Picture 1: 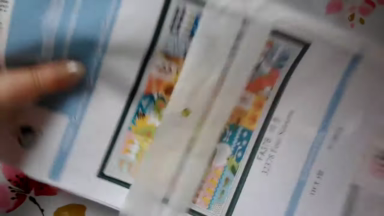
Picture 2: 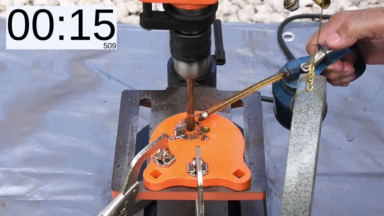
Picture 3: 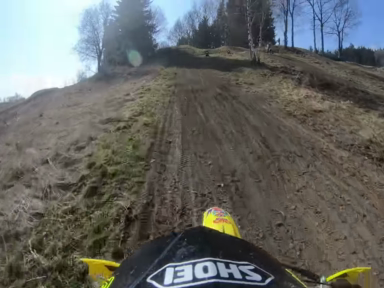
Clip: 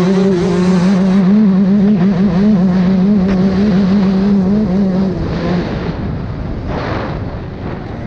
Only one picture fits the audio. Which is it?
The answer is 3